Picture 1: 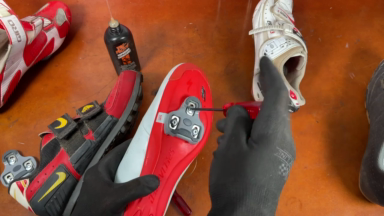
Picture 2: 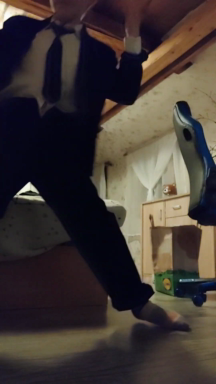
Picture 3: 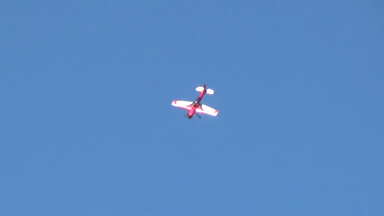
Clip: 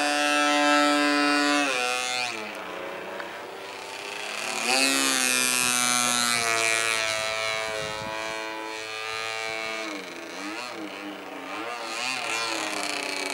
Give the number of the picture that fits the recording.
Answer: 3